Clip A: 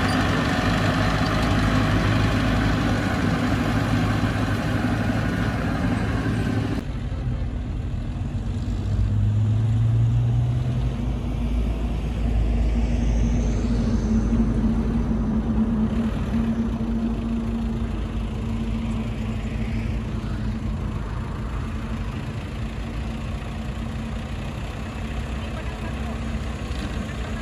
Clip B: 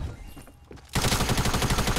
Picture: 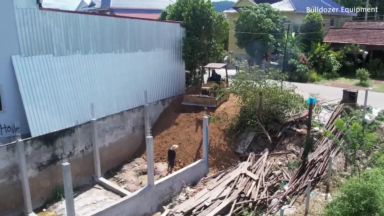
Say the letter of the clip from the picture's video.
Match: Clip A